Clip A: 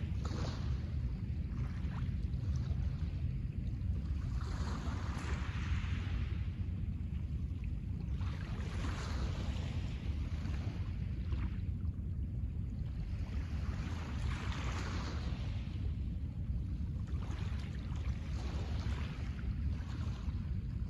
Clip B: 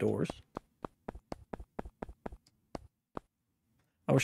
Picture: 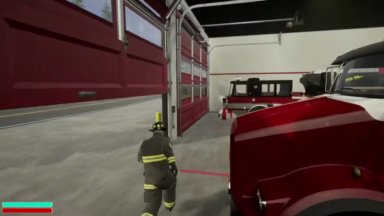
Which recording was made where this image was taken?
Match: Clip B